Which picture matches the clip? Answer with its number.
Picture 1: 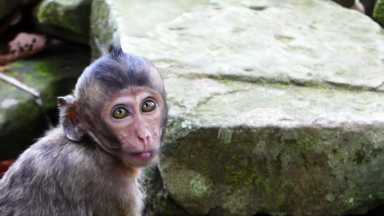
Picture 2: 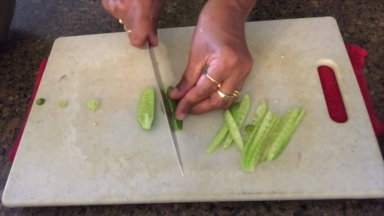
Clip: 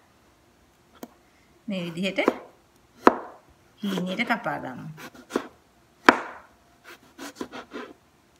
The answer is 2